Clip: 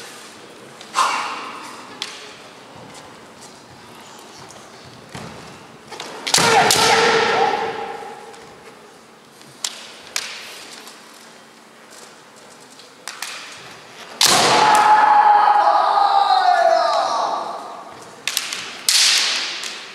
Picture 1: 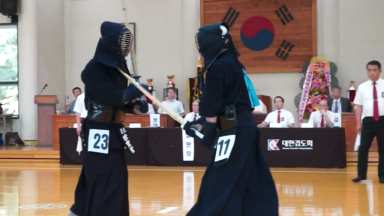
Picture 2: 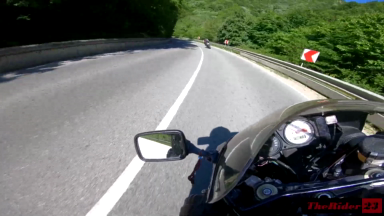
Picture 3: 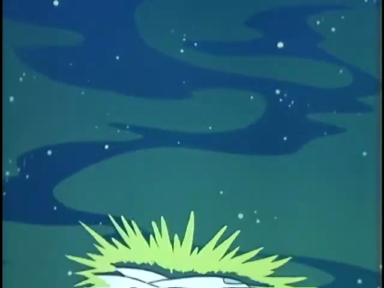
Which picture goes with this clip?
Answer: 1